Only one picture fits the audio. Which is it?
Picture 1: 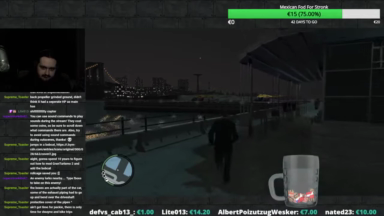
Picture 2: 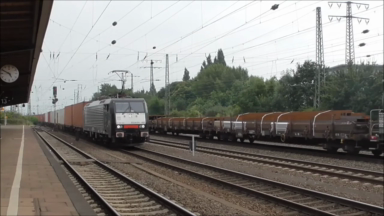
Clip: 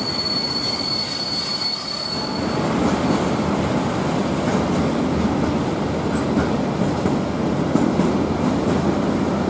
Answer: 2